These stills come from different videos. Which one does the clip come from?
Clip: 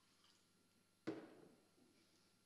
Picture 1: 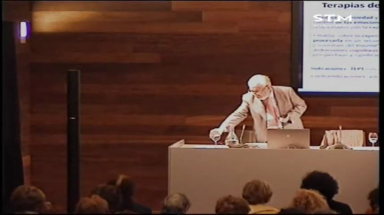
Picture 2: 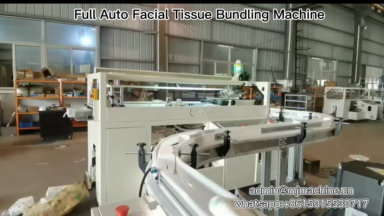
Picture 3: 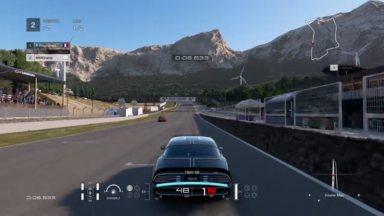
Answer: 1